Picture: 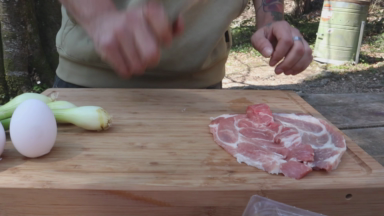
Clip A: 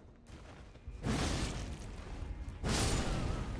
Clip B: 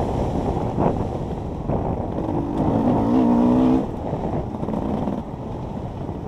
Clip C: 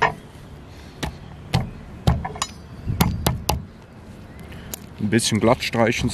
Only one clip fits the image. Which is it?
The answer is C